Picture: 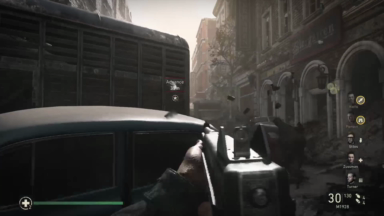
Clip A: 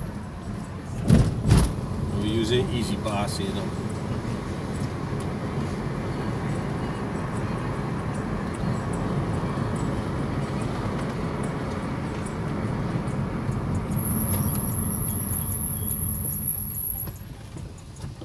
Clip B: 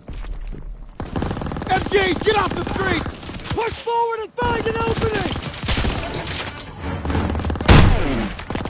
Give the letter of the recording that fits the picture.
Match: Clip B